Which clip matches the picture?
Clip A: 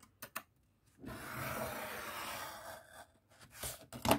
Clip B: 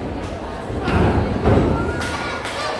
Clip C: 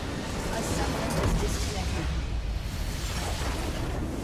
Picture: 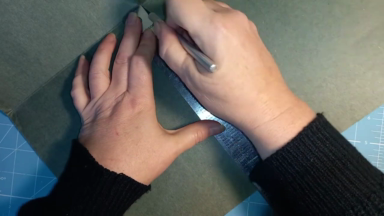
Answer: A